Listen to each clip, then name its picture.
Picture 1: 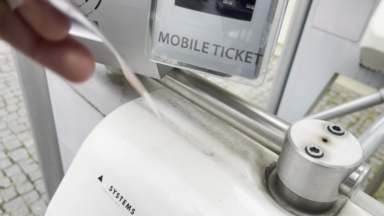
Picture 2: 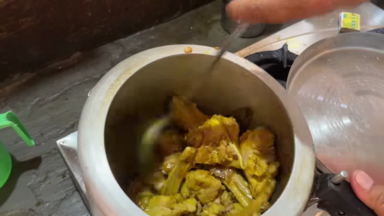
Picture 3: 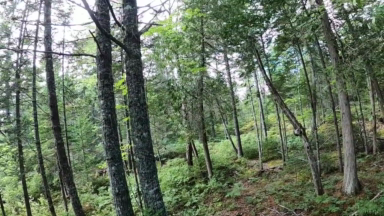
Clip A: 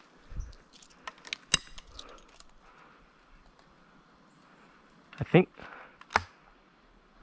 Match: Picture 3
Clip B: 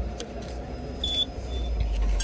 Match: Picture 1